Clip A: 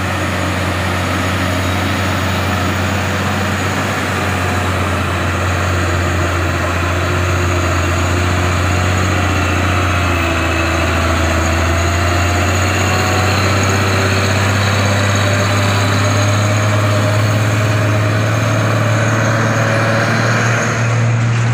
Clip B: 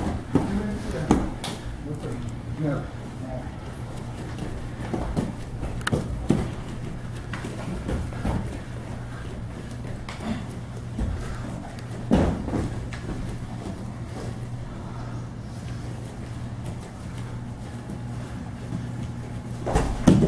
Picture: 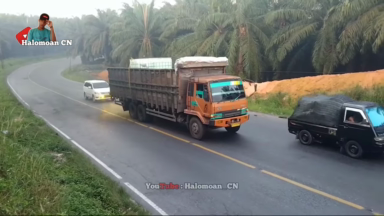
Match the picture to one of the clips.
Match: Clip A